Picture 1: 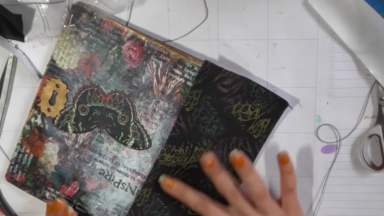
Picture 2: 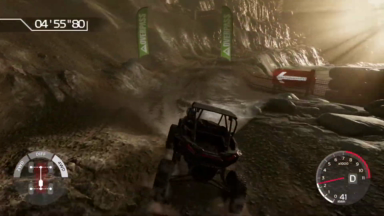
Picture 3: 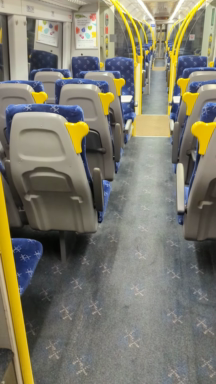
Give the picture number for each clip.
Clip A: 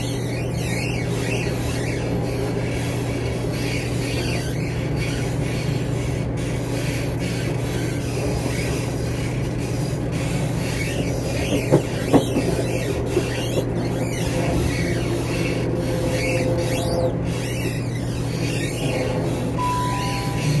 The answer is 3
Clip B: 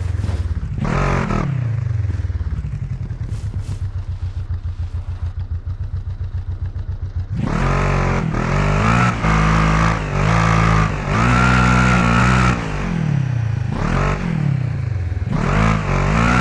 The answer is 2